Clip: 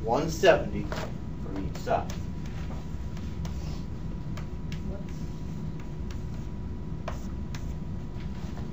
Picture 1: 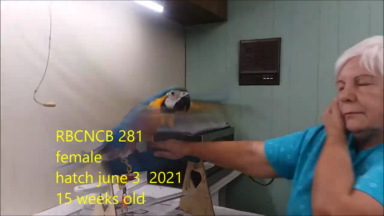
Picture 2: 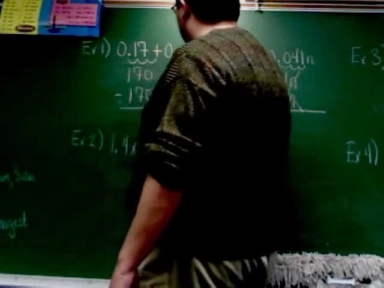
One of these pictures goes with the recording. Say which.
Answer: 2